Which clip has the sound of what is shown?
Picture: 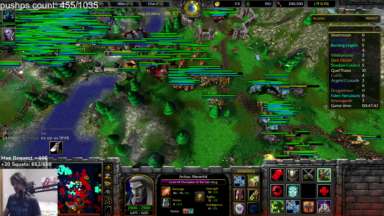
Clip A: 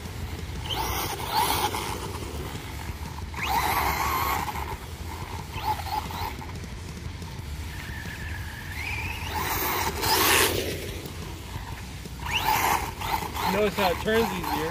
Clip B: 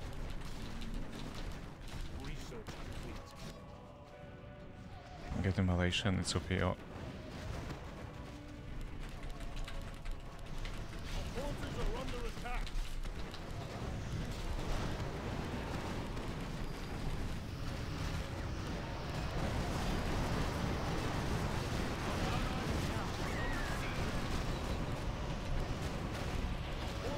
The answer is B